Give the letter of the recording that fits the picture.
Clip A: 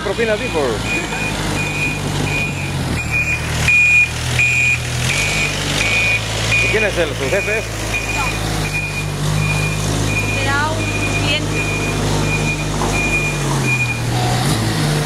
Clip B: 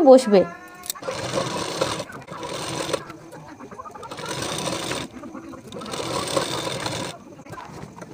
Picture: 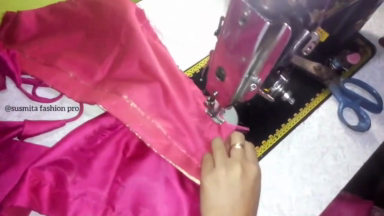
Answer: B